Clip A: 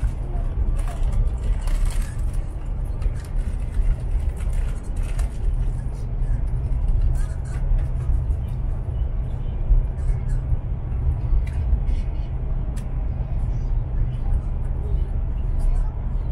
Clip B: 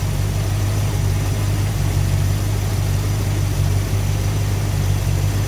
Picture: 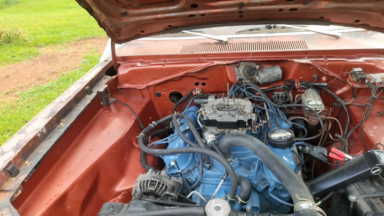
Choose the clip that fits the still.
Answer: B